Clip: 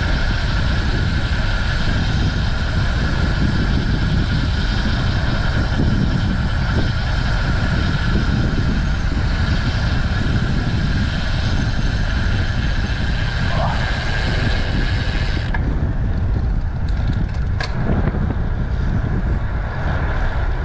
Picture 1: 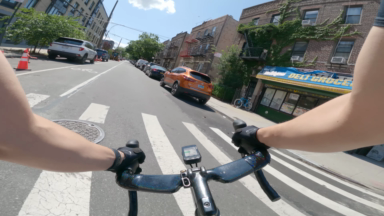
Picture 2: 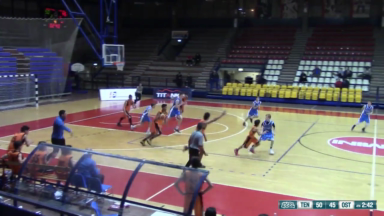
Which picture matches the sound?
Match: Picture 1